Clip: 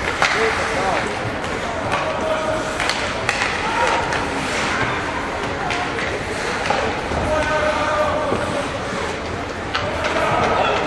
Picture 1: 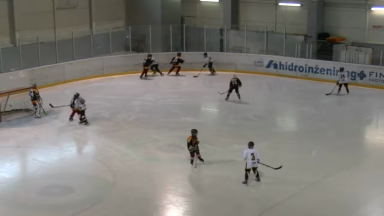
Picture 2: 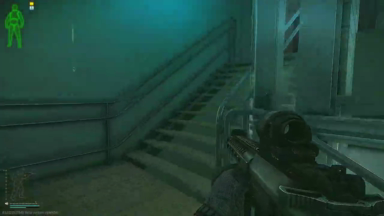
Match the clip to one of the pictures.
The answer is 1